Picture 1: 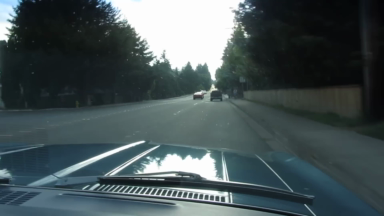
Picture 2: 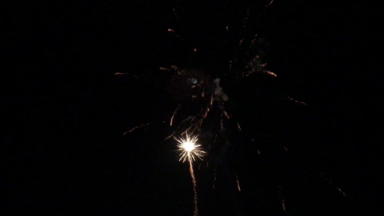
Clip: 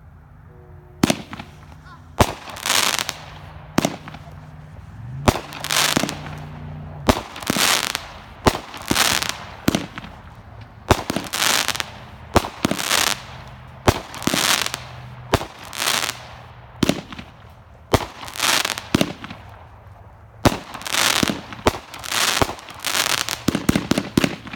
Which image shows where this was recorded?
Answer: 2